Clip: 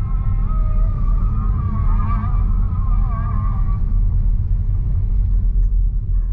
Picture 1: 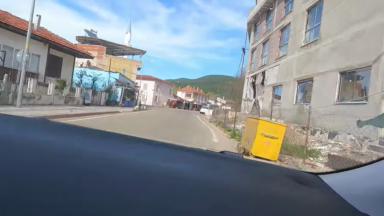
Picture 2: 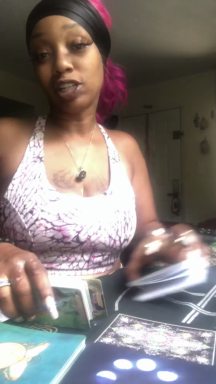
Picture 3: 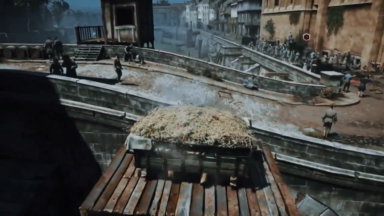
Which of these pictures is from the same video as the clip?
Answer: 1